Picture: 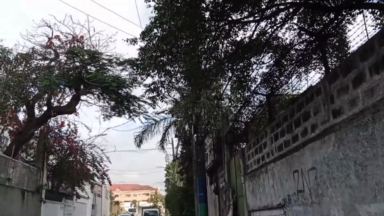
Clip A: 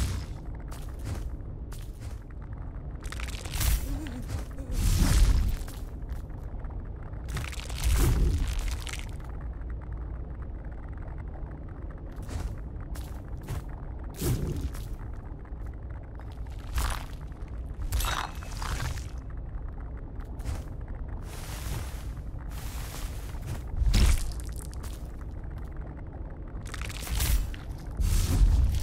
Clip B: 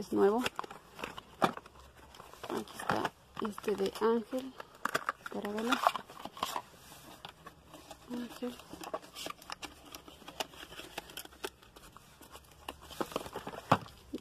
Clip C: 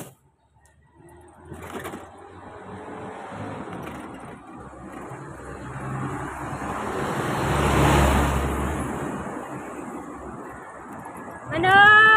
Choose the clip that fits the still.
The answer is C